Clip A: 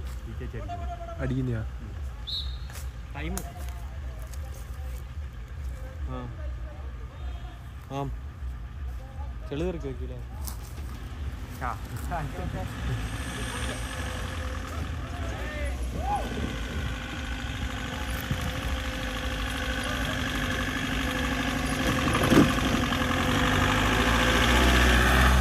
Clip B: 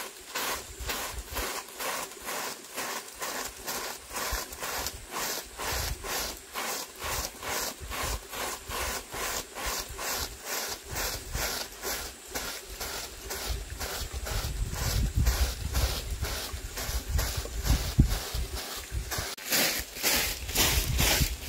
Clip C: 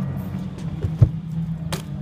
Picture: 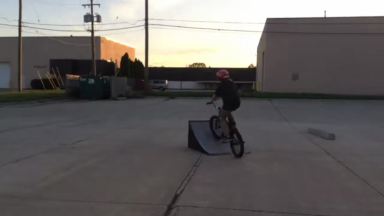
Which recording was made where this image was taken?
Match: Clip C